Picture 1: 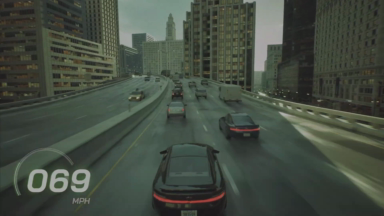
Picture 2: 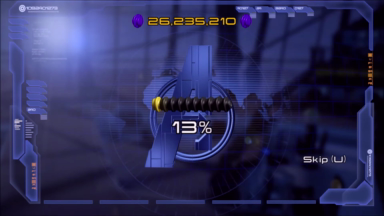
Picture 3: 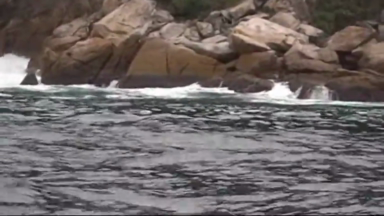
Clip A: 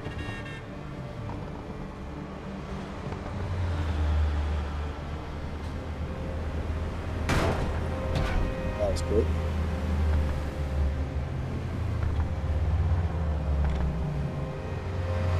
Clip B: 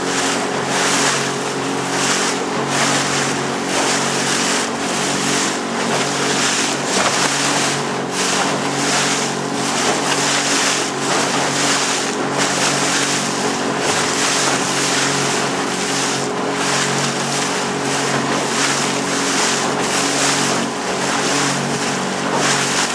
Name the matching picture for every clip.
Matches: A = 1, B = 3